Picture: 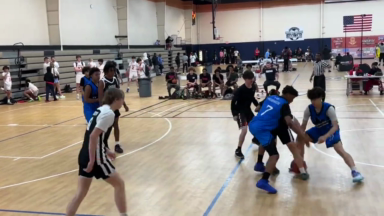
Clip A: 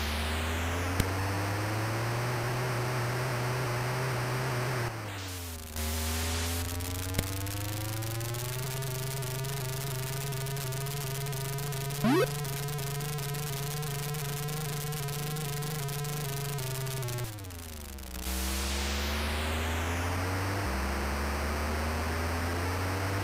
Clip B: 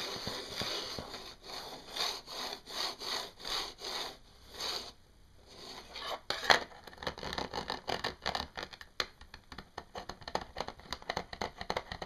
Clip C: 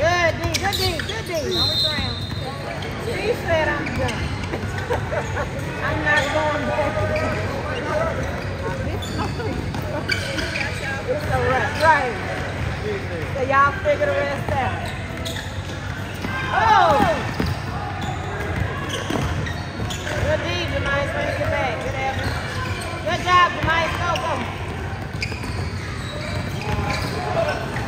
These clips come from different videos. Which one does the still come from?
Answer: C